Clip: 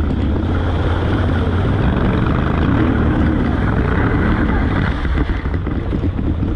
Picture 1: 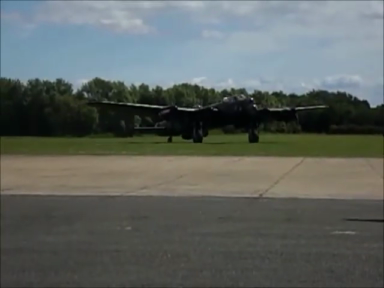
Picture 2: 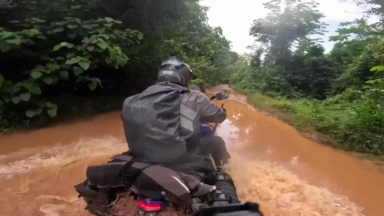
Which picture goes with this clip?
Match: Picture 2